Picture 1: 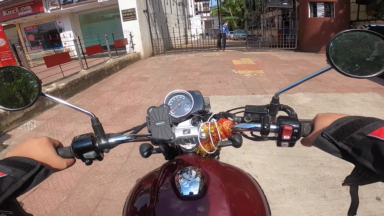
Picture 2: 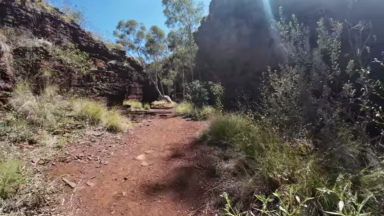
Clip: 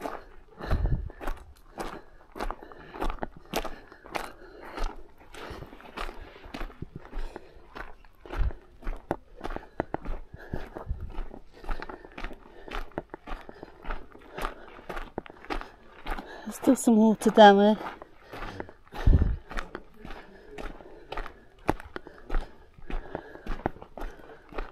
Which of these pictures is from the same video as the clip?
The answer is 2